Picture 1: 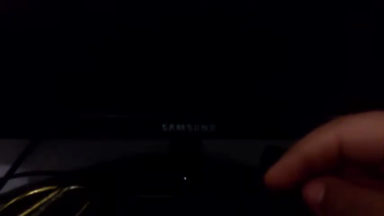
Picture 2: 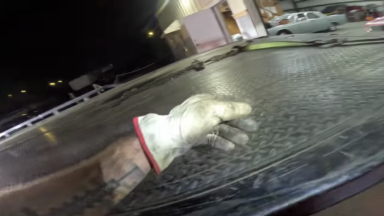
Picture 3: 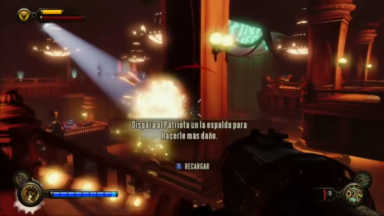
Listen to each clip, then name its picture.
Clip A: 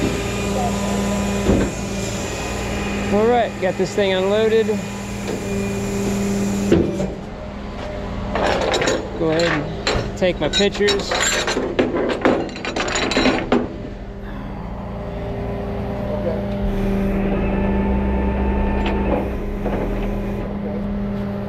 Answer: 2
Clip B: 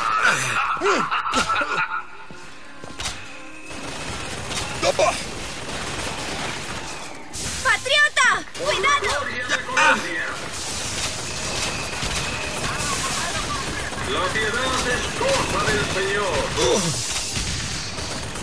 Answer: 3